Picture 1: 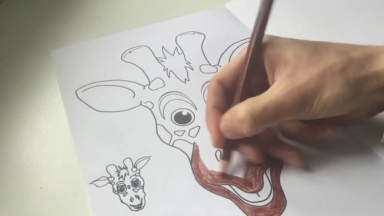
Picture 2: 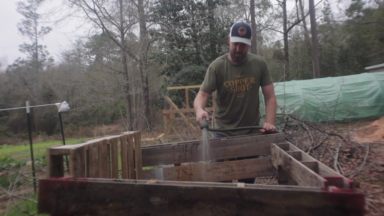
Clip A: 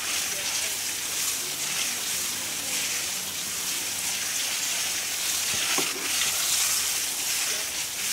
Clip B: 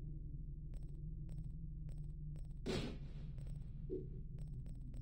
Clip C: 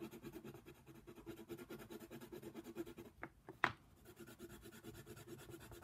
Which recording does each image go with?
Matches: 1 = C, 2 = A